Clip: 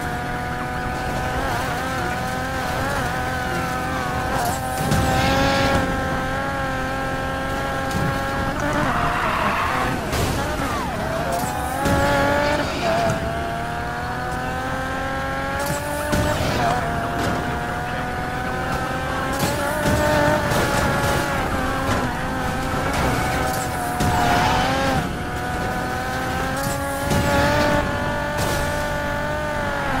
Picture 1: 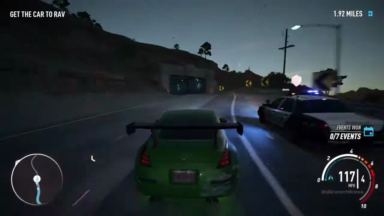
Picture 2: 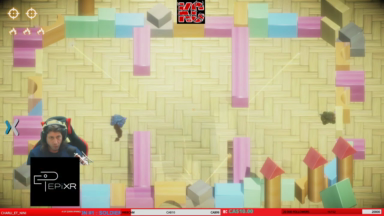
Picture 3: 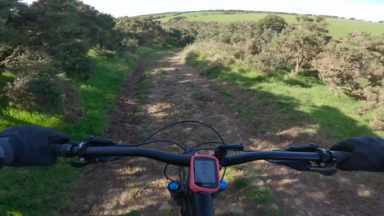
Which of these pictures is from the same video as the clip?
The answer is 1